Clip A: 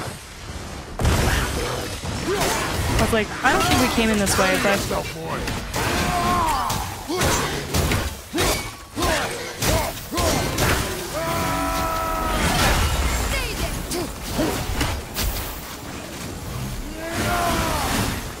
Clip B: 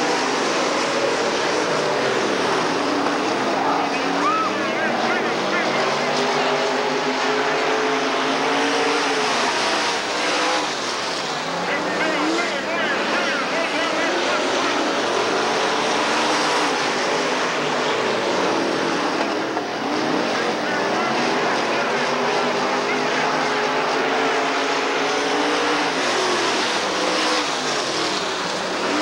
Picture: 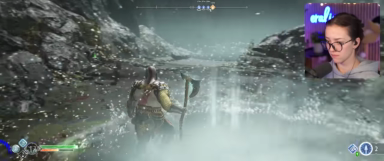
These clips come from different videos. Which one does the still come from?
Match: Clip A